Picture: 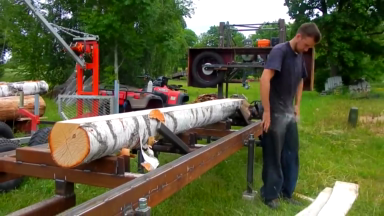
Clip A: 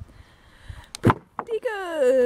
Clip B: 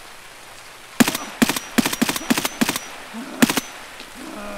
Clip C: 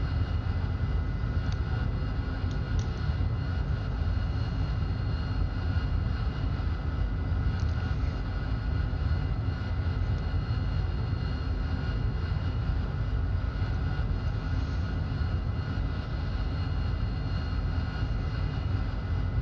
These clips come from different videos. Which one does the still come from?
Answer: A